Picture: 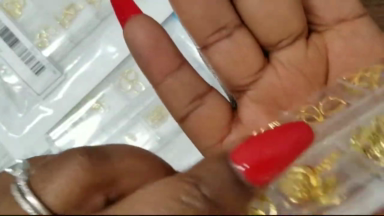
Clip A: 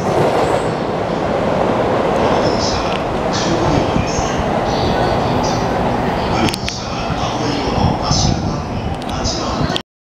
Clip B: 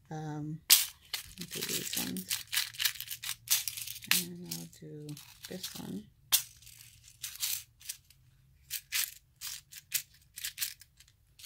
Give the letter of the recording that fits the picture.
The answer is B